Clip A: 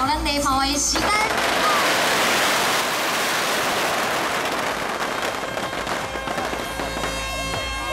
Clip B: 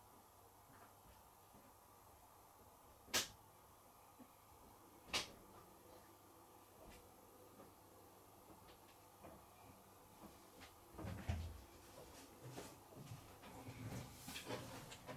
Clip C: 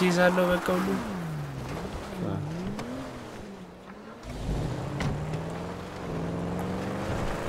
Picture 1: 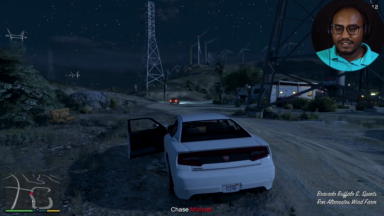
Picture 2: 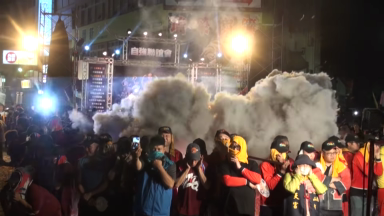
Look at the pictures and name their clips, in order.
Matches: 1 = C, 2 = A